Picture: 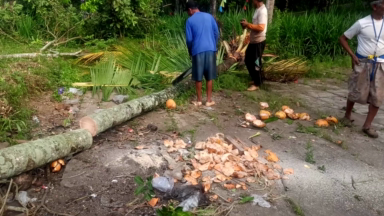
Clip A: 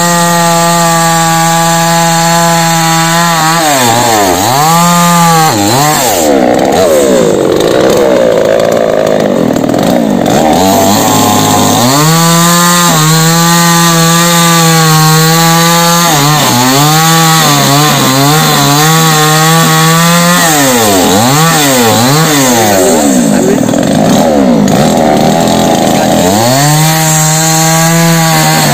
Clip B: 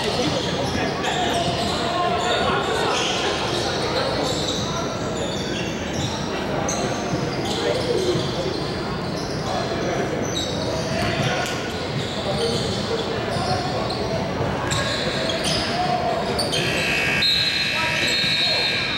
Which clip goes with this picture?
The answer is A